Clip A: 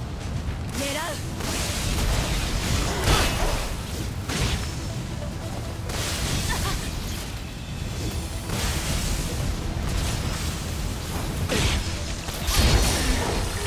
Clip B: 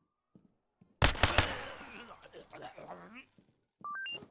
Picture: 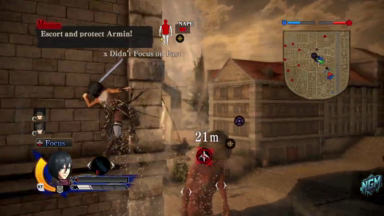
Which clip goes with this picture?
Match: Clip A